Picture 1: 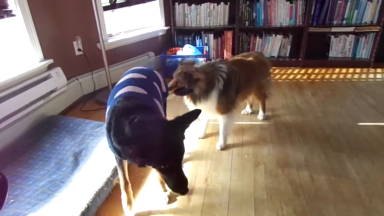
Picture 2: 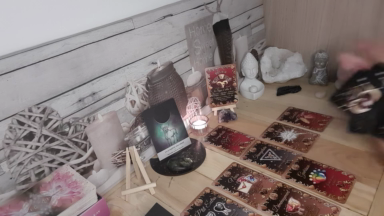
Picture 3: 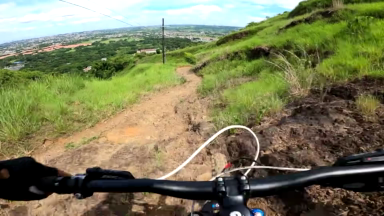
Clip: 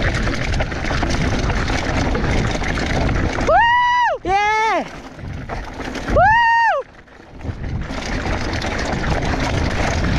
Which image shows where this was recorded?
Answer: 3